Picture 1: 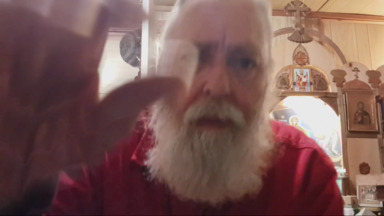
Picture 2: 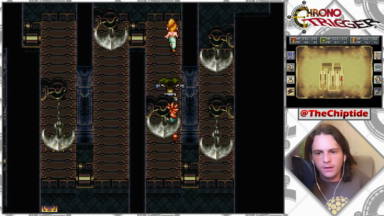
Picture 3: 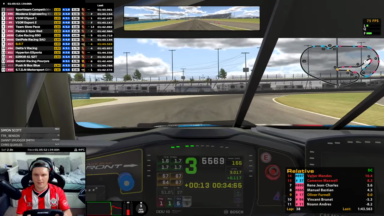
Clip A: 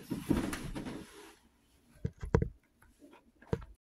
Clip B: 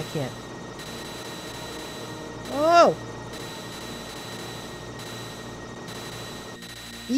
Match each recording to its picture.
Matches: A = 1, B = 2